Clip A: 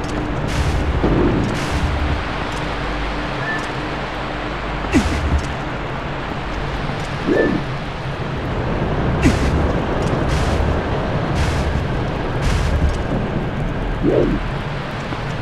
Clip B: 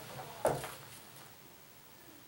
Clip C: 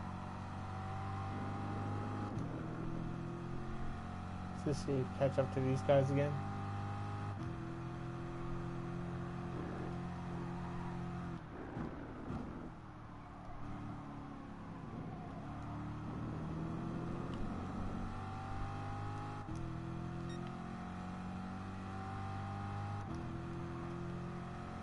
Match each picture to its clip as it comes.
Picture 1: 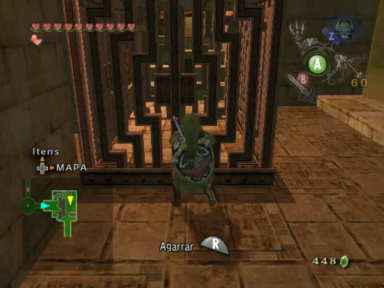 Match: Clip A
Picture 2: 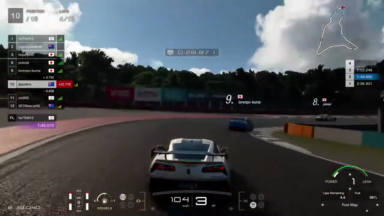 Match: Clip C